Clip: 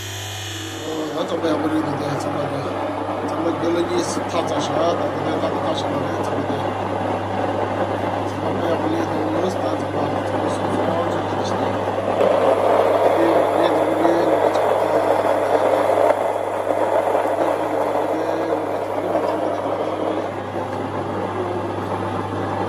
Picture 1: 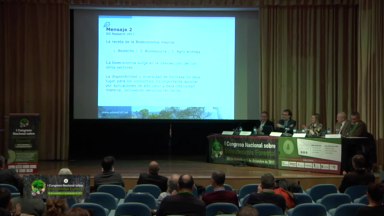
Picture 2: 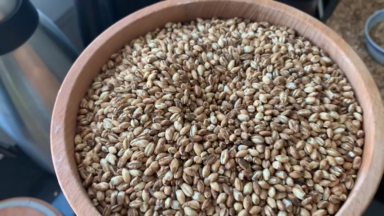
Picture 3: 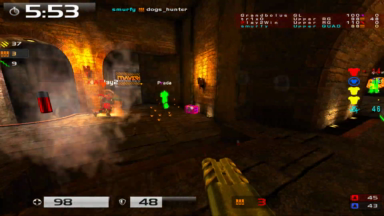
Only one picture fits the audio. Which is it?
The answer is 2